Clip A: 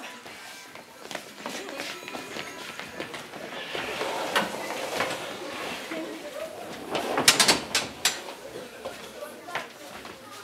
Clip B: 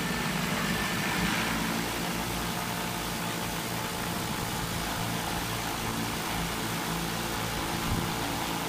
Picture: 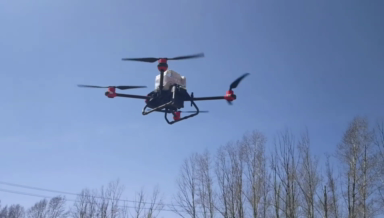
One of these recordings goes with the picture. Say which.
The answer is B